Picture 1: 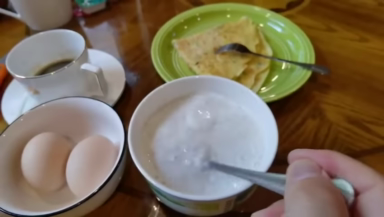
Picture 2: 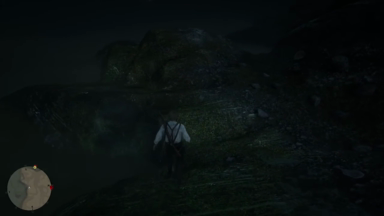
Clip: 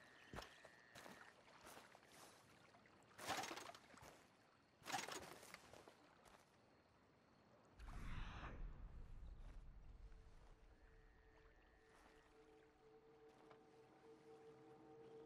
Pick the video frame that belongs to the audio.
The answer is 2